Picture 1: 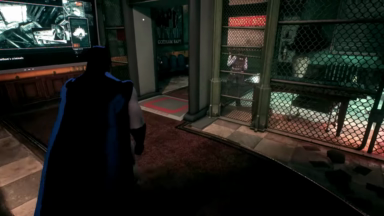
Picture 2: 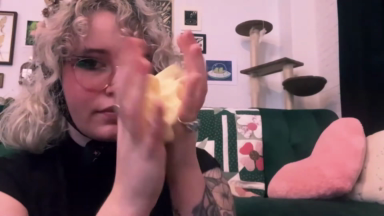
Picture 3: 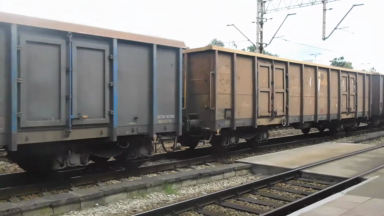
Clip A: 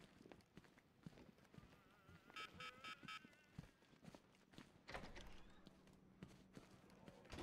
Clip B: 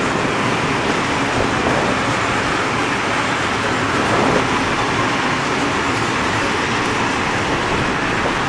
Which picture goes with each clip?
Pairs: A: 1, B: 3